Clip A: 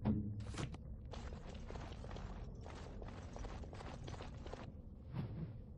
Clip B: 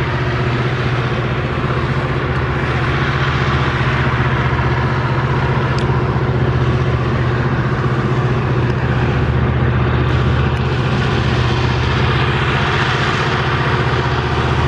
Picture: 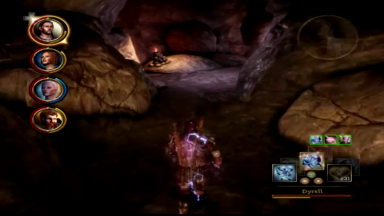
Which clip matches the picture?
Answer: A